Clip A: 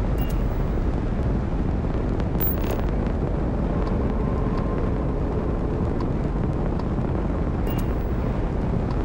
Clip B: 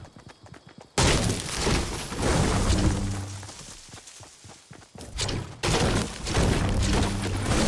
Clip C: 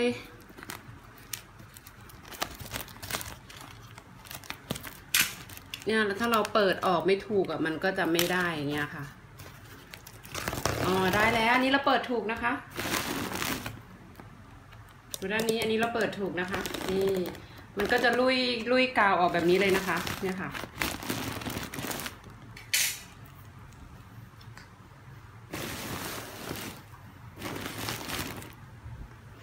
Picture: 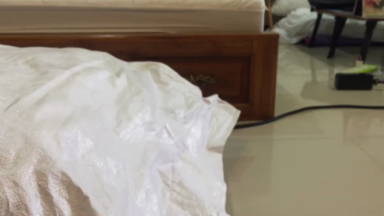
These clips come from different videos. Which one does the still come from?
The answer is C